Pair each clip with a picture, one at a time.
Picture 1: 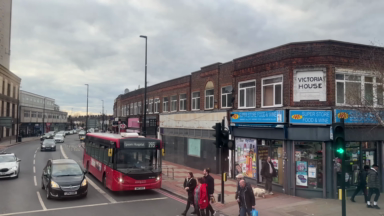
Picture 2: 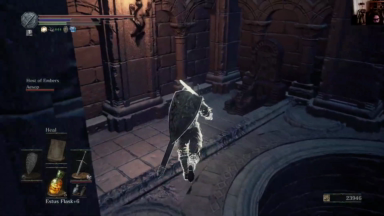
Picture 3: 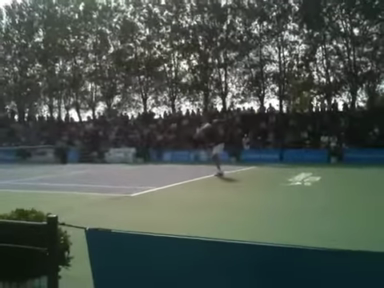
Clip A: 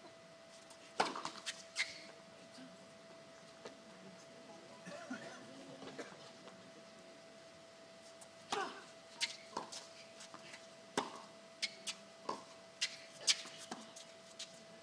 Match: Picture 3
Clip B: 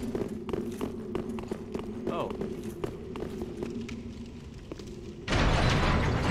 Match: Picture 2